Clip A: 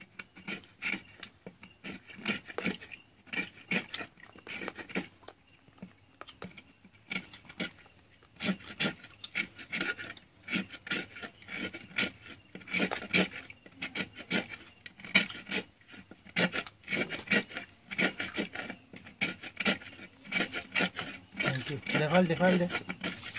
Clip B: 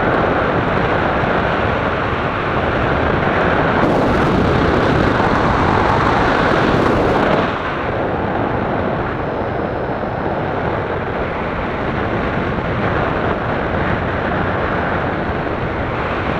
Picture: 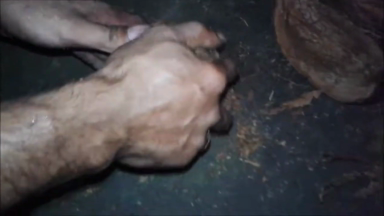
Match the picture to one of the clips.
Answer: A